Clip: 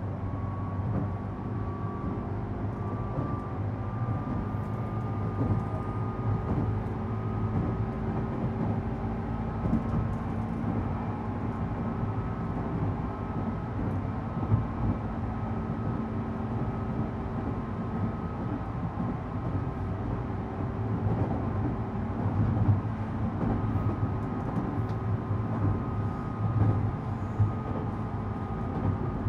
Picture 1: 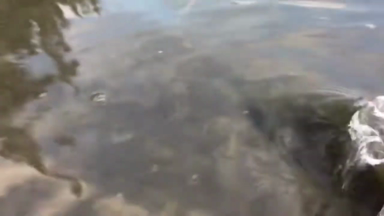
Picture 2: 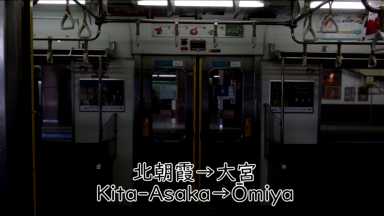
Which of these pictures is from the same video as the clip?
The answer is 2